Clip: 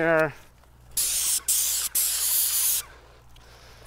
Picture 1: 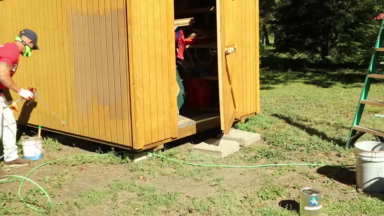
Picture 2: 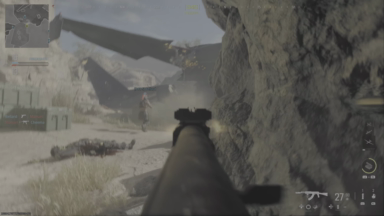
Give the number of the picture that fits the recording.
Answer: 1